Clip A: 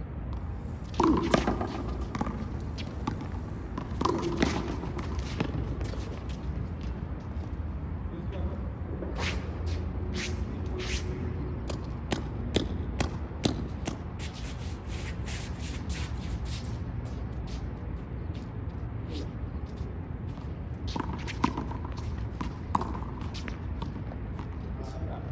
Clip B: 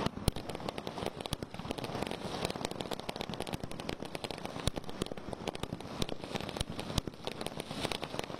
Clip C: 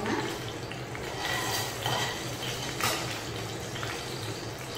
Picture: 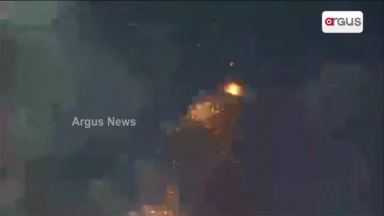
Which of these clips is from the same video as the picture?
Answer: B